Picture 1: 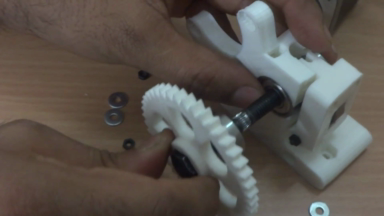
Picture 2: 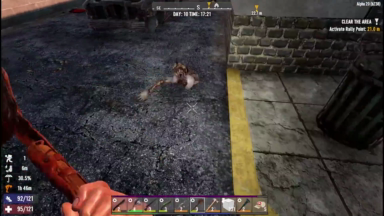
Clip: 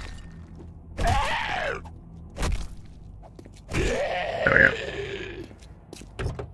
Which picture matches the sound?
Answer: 2